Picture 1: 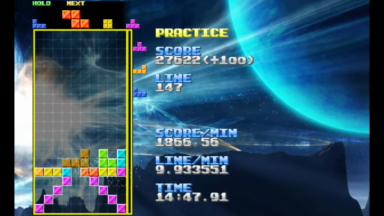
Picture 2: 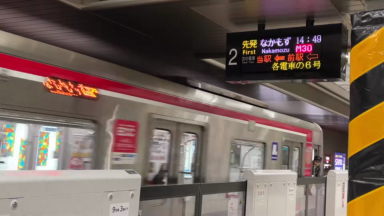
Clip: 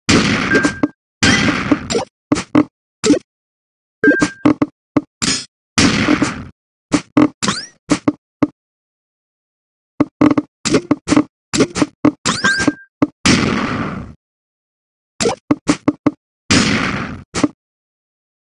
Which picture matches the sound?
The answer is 1